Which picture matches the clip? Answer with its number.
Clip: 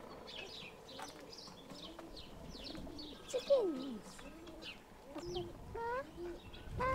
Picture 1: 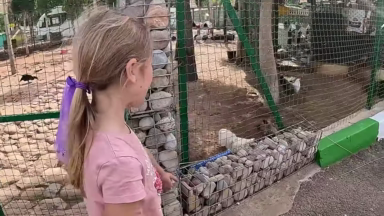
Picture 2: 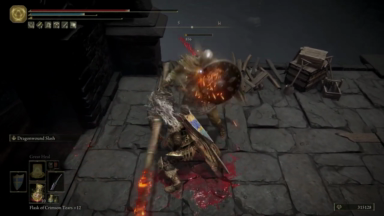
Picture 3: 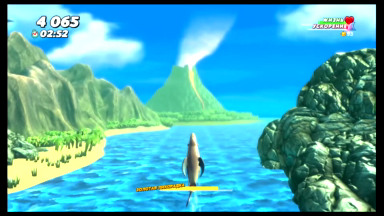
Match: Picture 1